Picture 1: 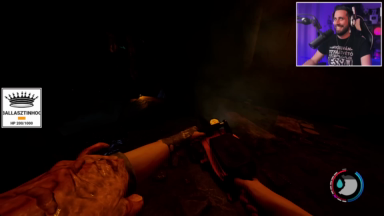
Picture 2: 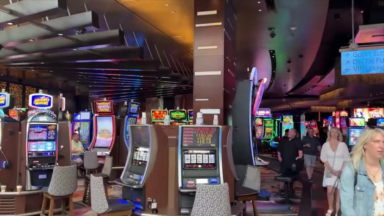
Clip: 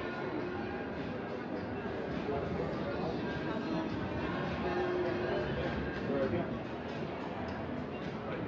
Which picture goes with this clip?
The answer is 2